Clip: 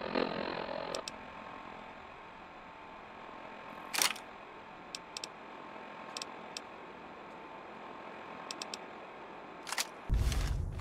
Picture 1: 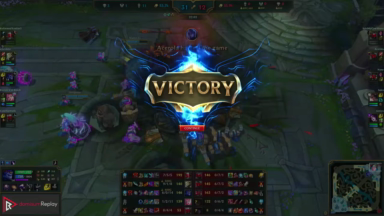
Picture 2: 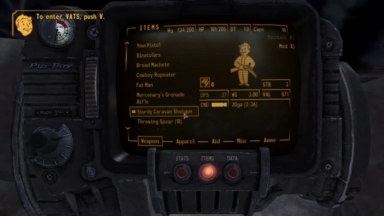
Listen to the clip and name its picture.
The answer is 2